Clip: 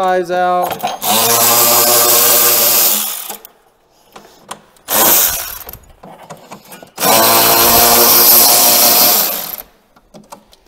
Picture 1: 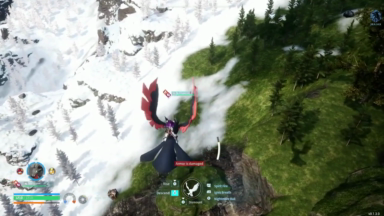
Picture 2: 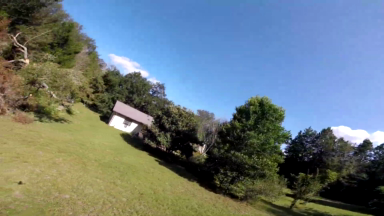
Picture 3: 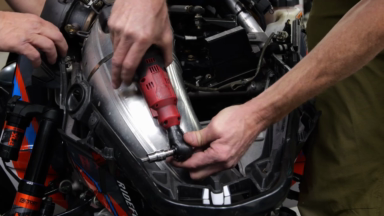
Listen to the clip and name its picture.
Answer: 3